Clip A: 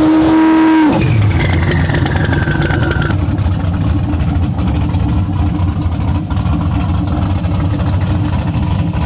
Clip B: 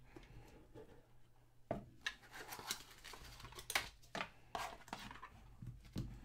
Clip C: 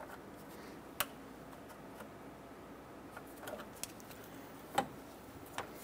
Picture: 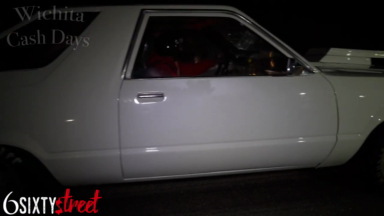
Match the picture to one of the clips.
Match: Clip A